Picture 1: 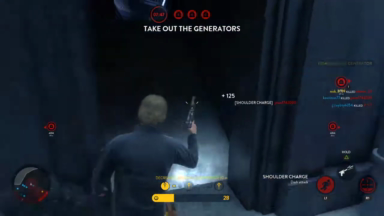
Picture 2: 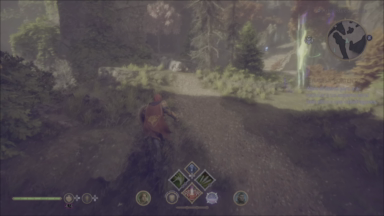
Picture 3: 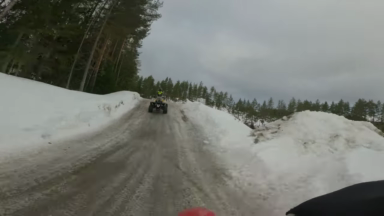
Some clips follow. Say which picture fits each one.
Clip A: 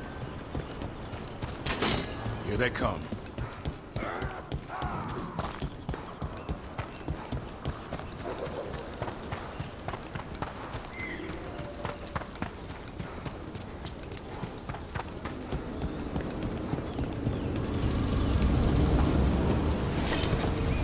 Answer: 2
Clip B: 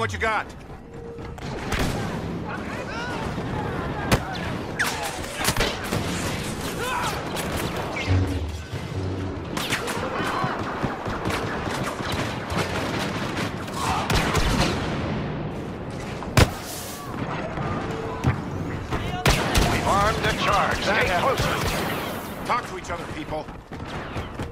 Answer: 1